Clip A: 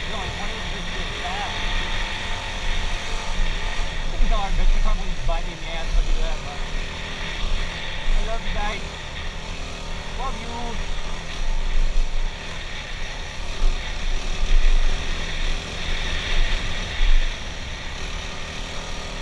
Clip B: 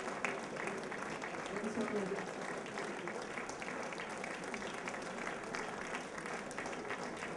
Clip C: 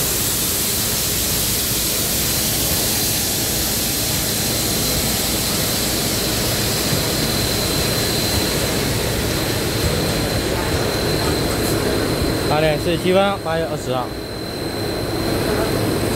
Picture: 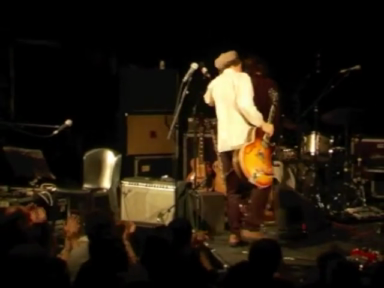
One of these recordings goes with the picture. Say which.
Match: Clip B